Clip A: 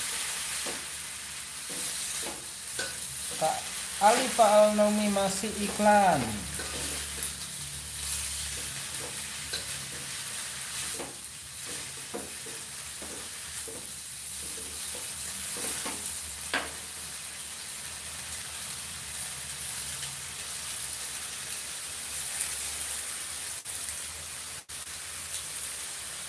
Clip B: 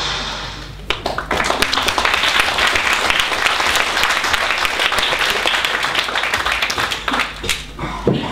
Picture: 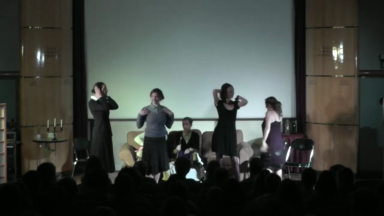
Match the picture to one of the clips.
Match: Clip B